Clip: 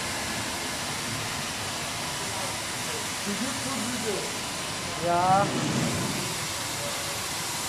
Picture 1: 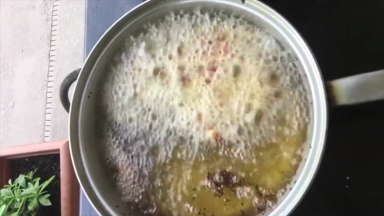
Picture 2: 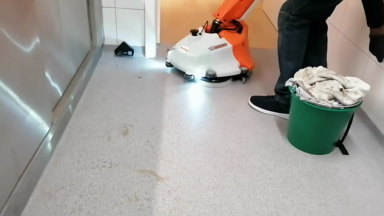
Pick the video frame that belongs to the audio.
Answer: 2